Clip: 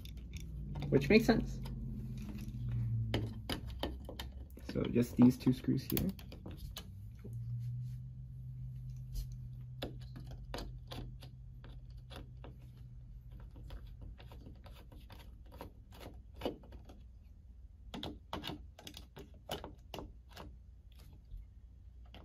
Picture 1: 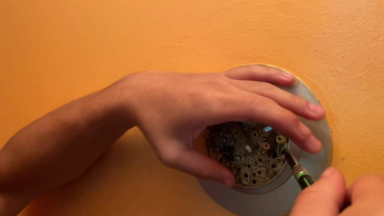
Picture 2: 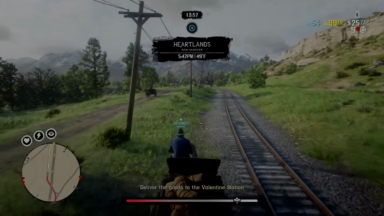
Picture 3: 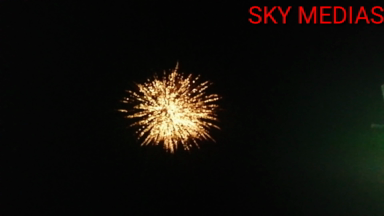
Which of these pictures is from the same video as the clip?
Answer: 1